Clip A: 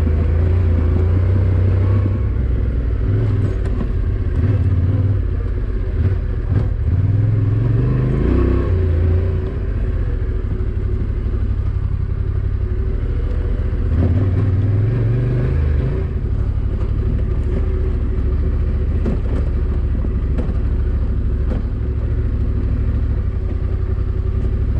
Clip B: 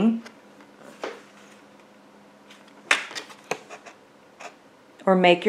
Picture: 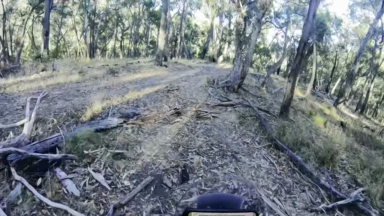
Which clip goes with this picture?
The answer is A